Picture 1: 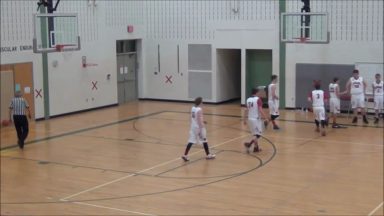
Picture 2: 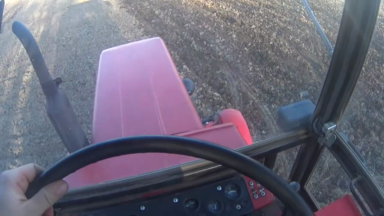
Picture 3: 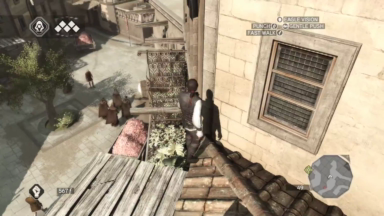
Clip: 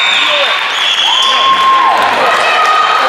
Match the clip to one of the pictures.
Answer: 1